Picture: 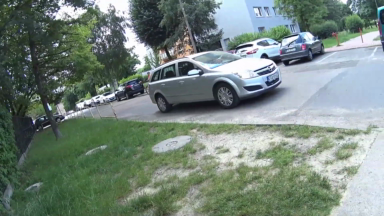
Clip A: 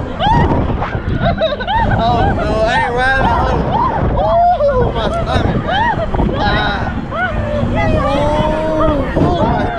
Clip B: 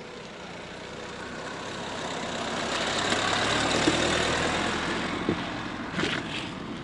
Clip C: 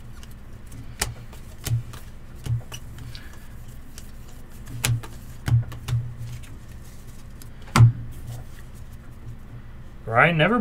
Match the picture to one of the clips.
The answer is B